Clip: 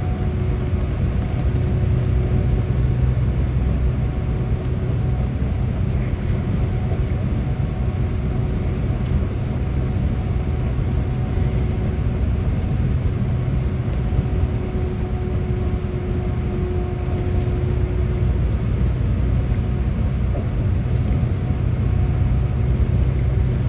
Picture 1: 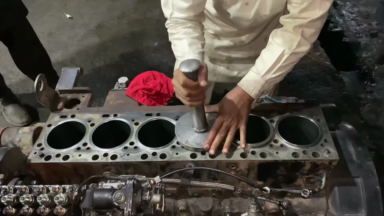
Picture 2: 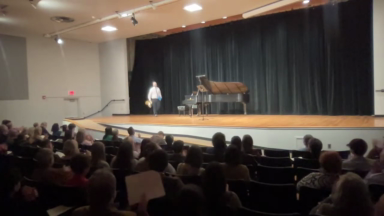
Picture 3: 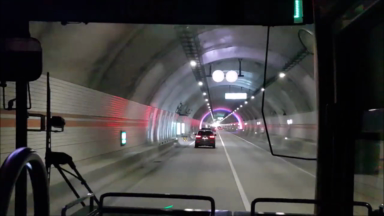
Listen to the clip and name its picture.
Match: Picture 3